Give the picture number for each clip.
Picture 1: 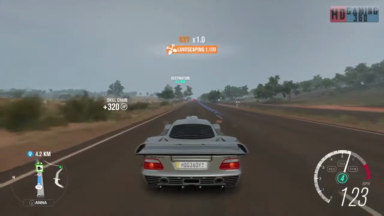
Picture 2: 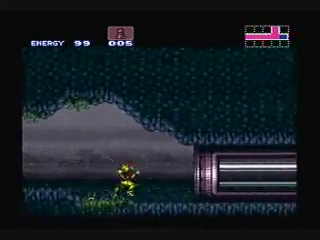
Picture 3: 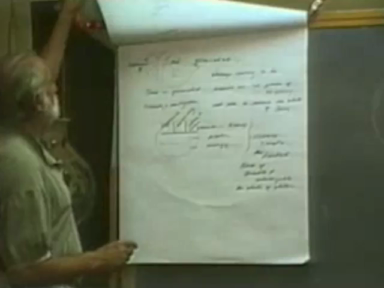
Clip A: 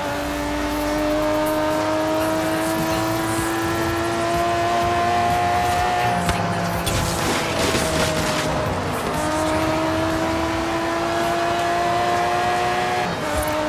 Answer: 1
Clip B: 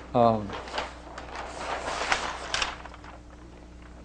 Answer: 3